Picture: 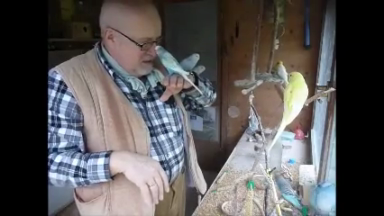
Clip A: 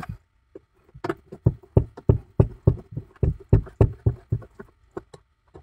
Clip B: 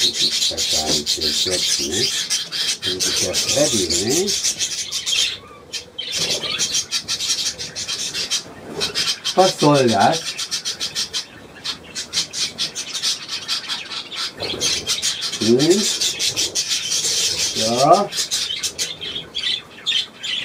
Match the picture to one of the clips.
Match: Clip B